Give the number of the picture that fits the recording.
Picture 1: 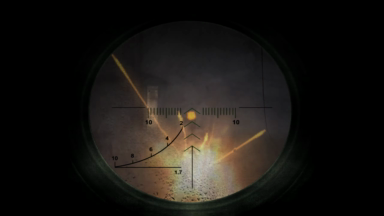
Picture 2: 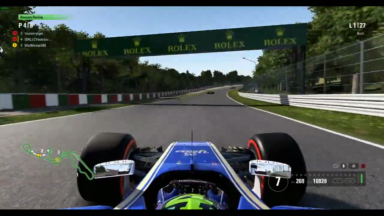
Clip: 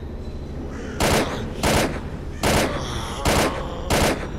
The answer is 1